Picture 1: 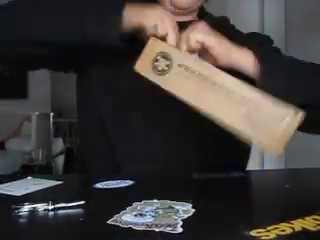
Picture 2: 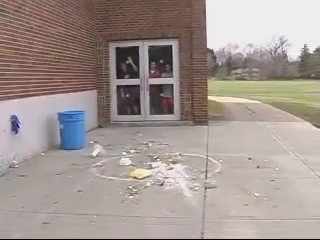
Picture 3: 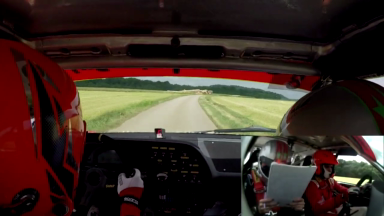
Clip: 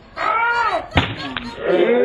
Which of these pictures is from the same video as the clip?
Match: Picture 2